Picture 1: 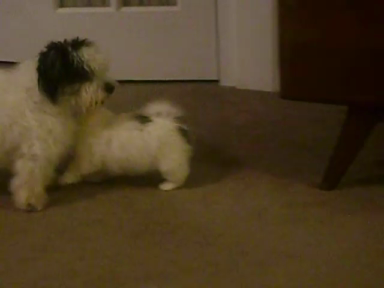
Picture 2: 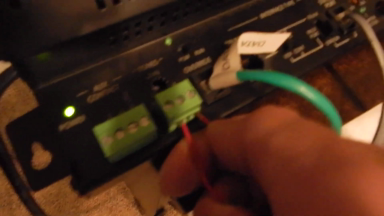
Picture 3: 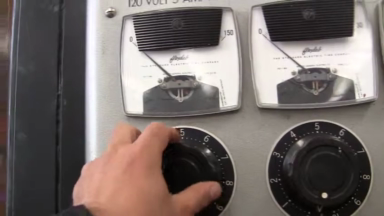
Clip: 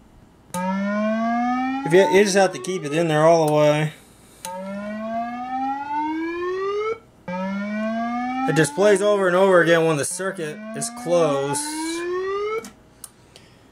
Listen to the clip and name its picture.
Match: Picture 2